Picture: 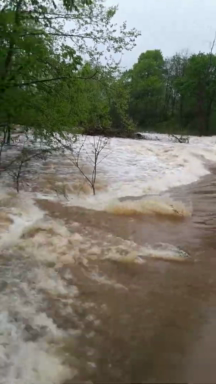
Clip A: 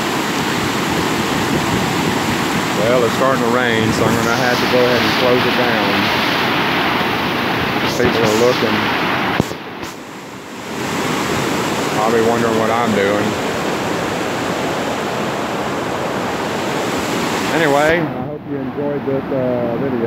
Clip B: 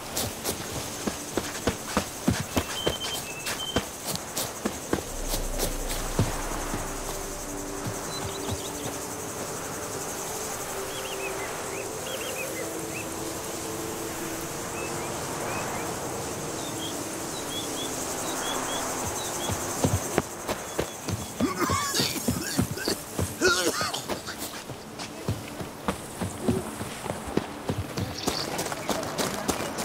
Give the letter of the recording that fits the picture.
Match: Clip A